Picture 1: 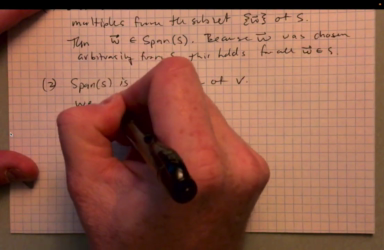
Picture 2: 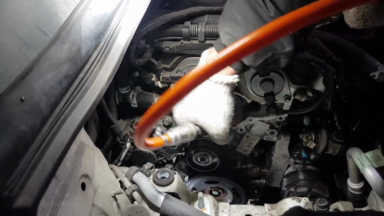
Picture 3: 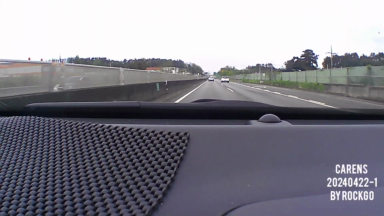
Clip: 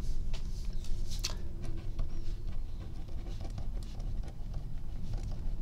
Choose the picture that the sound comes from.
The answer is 1